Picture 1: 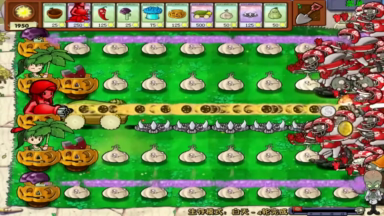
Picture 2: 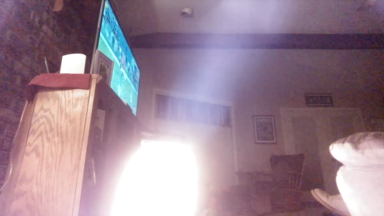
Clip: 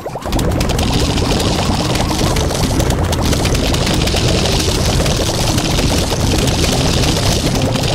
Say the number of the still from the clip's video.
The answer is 1